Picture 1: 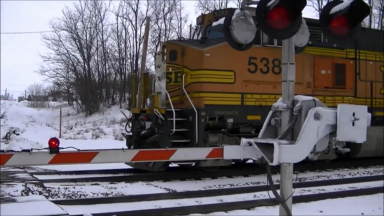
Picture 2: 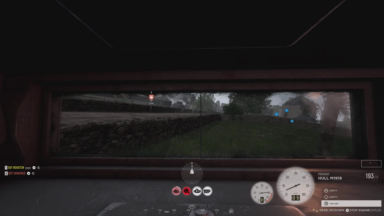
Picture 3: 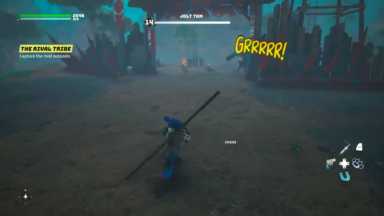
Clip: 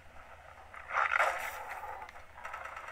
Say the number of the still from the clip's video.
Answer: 3